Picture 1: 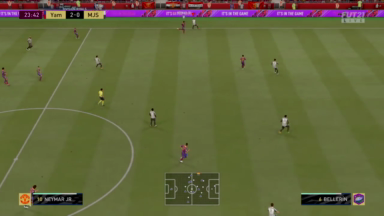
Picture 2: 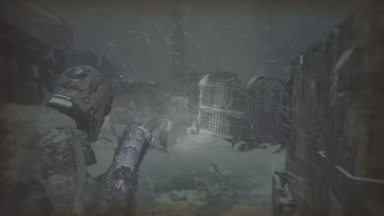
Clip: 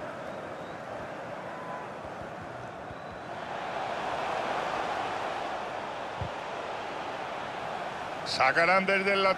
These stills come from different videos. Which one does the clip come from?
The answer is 1